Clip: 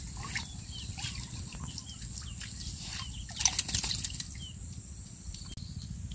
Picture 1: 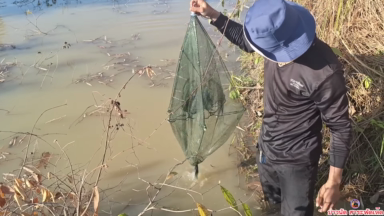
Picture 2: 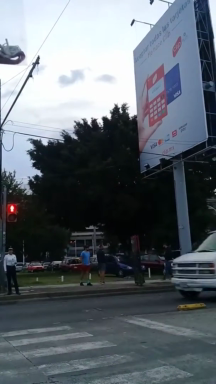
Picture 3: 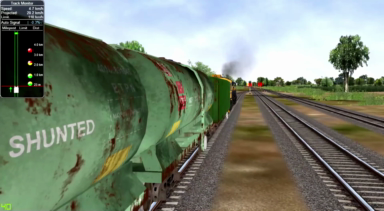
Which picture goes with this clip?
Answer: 1